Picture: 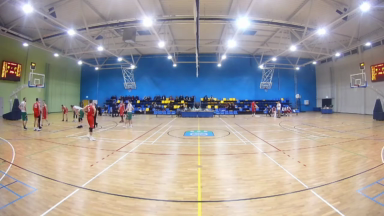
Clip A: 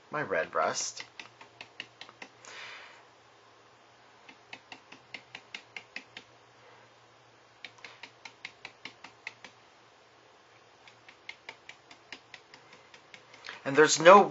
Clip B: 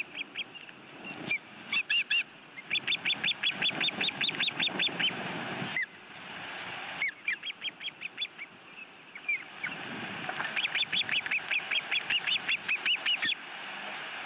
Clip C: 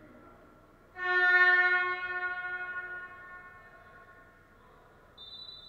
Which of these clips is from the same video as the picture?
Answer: C